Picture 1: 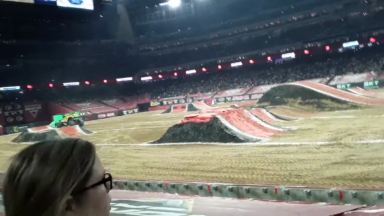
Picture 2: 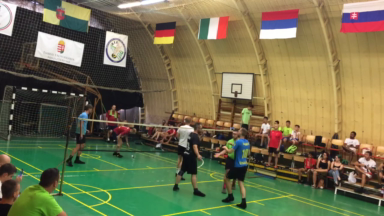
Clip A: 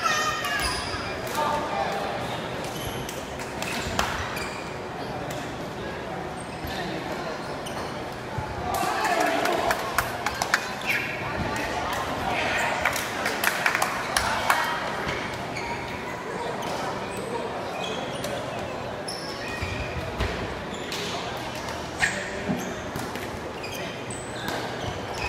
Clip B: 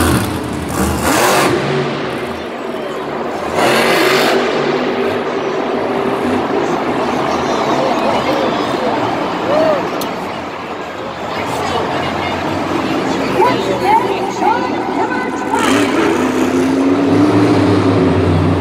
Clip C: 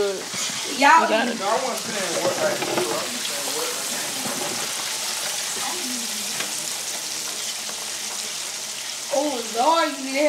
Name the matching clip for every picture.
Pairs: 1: B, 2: A